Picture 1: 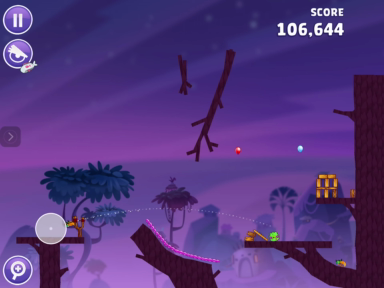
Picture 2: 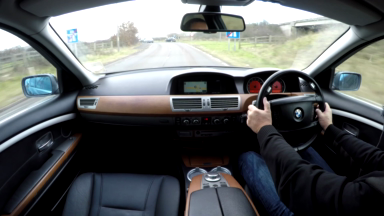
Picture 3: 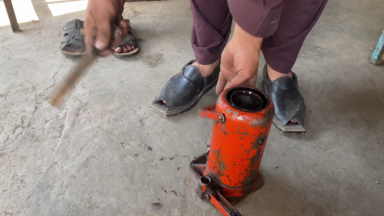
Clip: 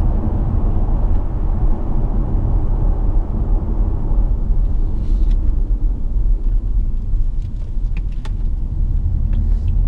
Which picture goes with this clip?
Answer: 2